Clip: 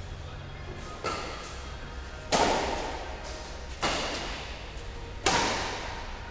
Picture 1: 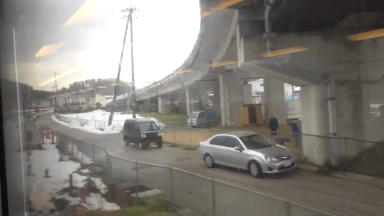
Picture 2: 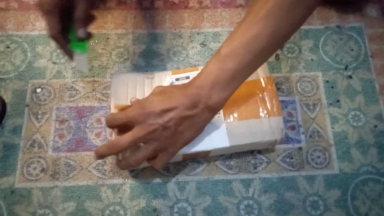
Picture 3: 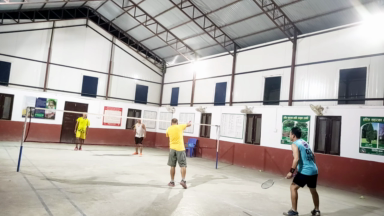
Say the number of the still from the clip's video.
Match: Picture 3